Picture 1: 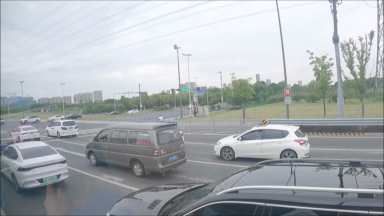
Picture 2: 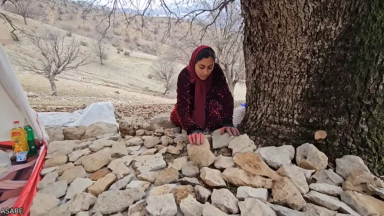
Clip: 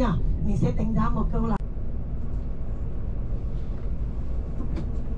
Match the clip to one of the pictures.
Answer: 1